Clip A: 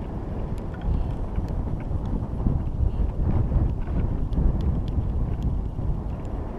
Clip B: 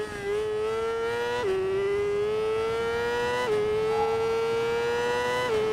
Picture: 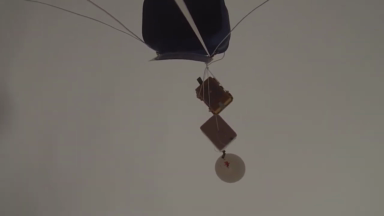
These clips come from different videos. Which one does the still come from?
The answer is A